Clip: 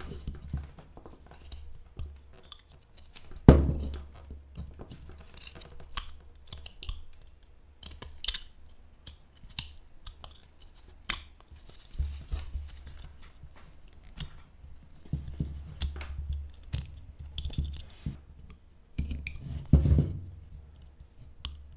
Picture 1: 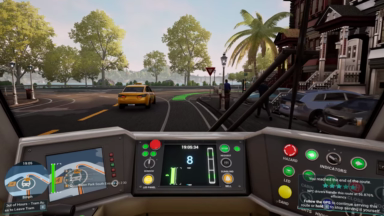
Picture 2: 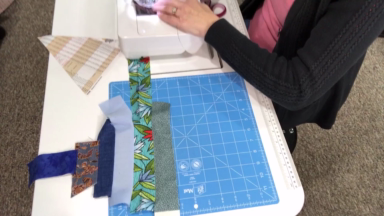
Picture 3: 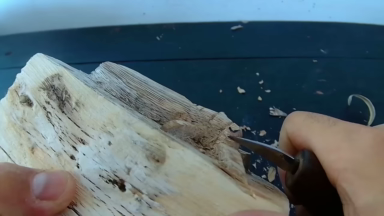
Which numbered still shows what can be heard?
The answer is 3